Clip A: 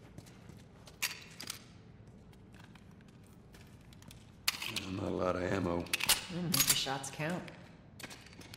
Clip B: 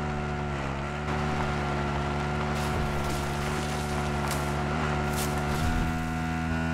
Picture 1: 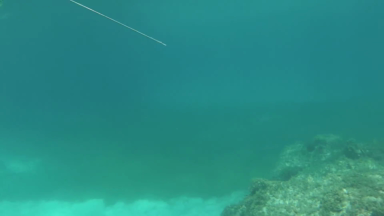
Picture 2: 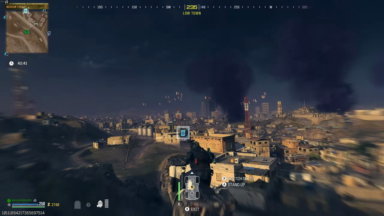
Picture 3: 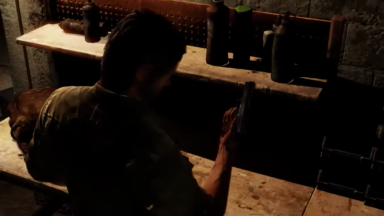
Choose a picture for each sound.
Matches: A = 3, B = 2